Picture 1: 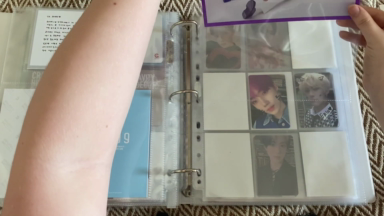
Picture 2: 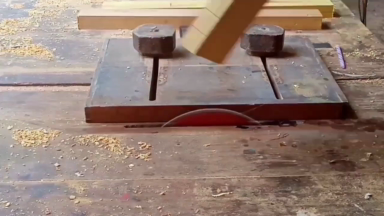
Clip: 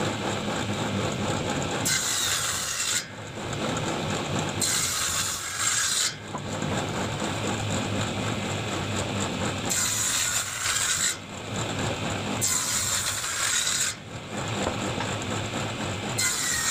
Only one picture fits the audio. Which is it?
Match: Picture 2